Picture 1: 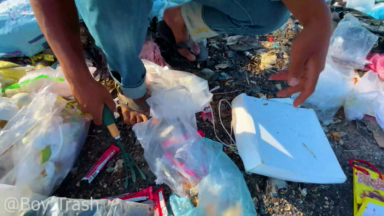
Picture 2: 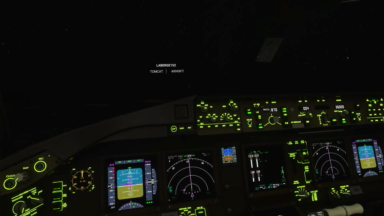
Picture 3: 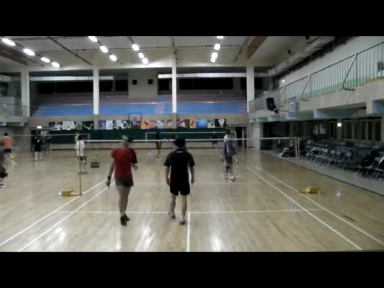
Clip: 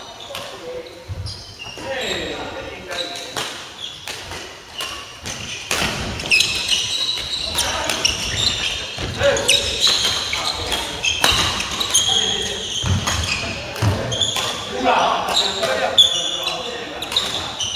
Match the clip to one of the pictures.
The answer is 3